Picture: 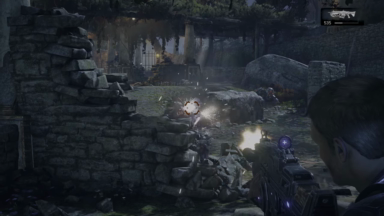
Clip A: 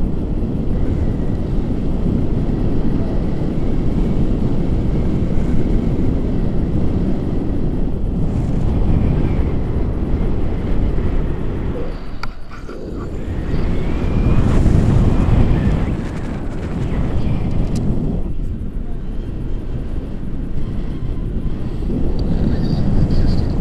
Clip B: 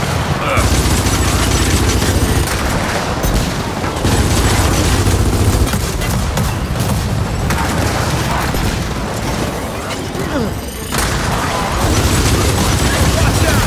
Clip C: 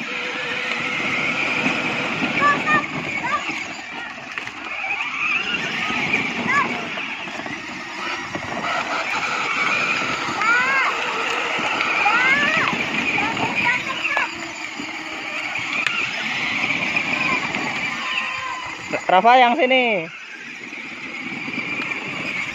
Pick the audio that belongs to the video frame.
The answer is B